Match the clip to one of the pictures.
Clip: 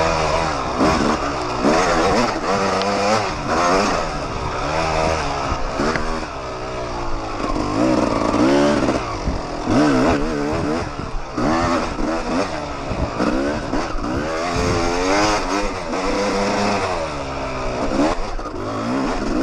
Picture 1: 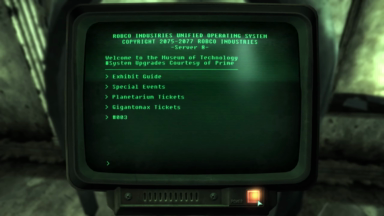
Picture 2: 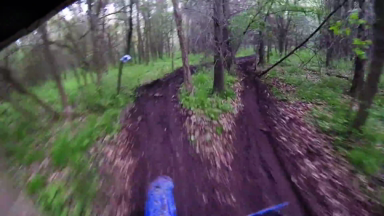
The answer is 2